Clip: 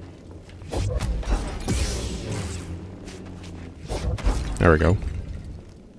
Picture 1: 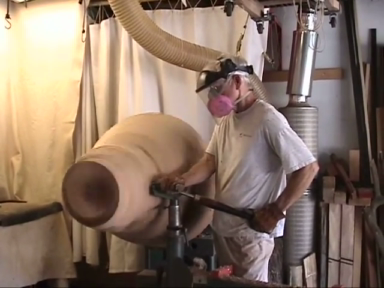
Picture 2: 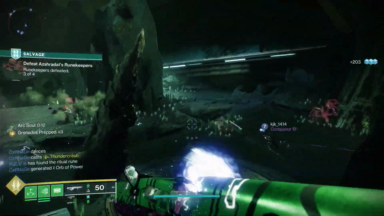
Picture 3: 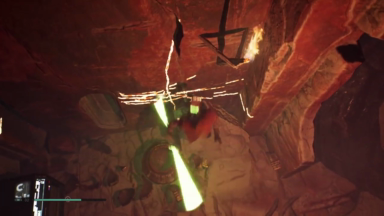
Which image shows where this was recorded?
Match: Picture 3